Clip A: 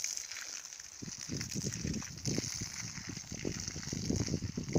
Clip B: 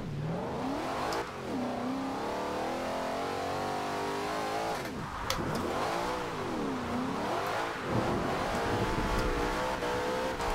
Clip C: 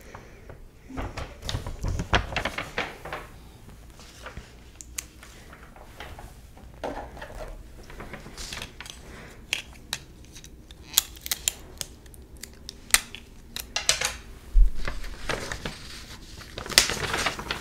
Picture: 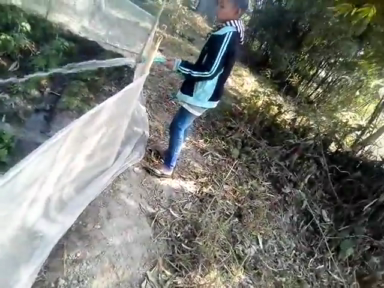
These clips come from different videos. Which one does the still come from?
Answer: A